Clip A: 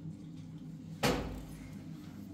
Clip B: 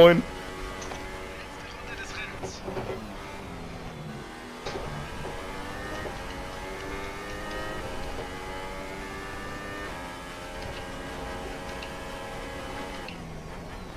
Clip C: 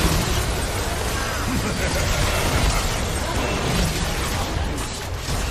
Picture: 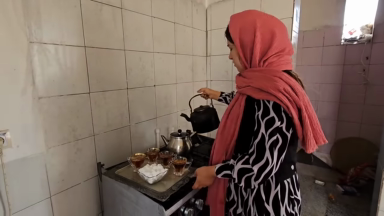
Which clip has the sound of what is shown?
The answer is A